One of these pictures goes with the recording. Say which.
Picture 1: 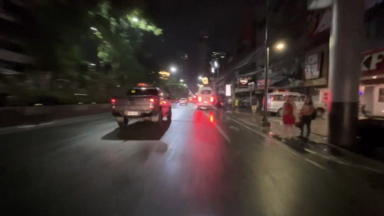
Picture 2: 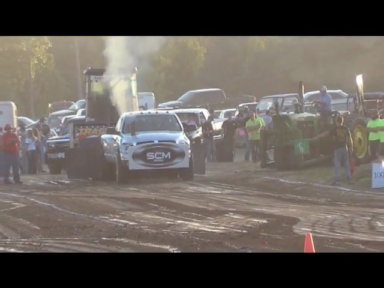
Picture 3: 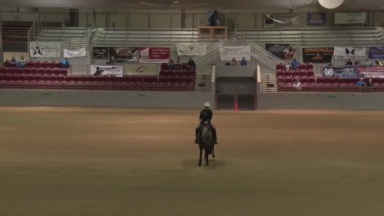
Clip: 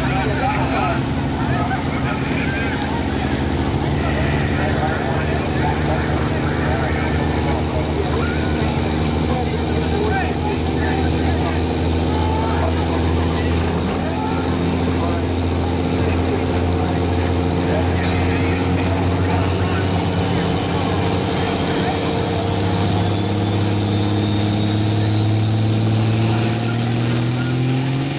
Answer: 2